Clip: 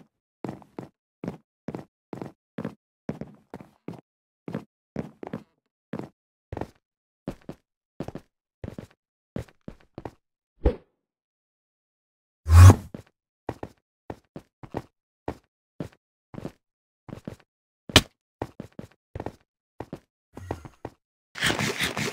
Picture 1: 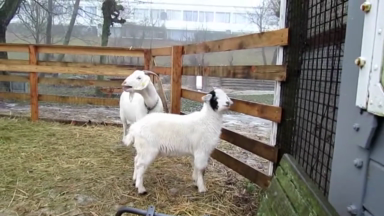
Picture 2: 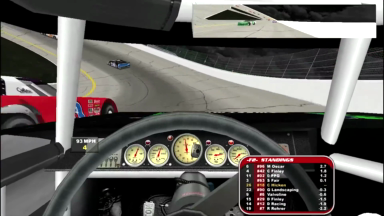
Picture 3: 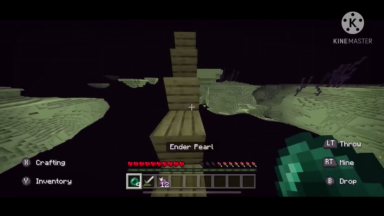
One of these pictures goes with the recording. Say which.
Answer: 3